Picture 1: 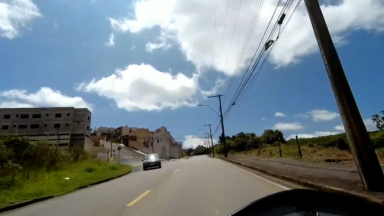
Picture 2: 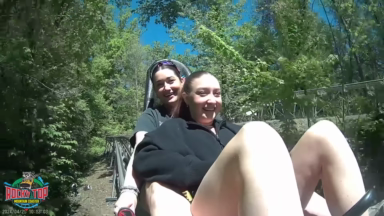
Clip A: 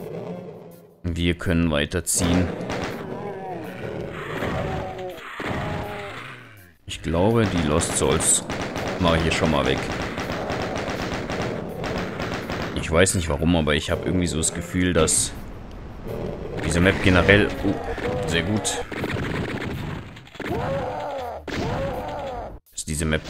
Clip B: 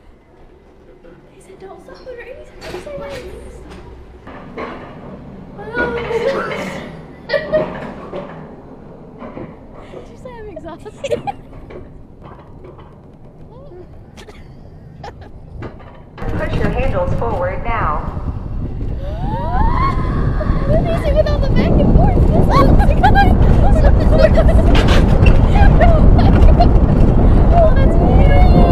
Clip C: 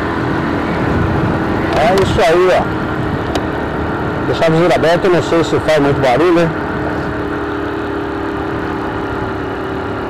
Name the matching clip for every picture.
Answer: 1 C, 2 B